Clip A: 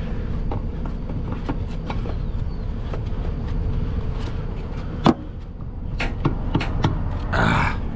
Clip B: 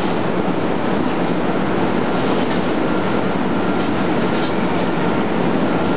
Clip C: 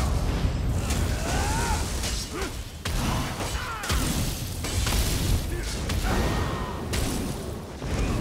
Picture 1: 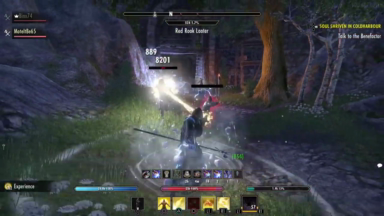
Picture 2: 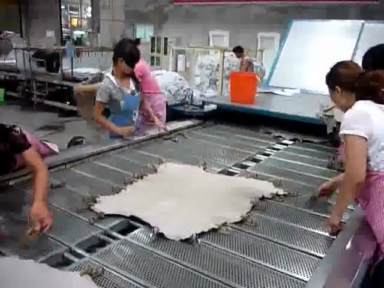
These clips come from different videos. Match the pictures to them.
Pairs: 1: C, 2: B